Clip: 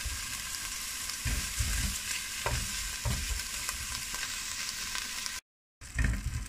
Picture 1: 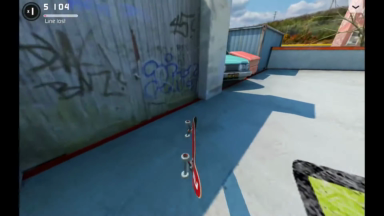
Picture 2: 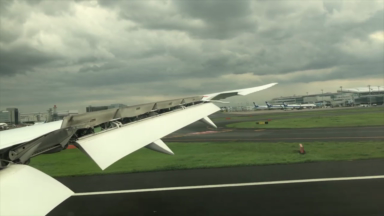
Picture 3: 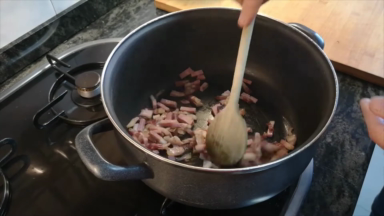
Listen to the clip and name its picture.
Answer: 3